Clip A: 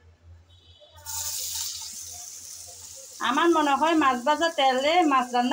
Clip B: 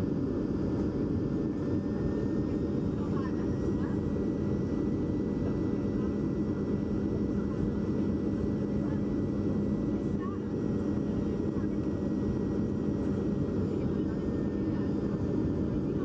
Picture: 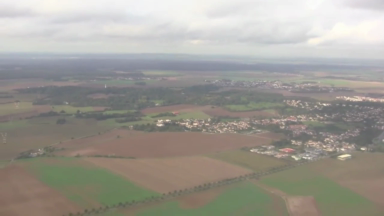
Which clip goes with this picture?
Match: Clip B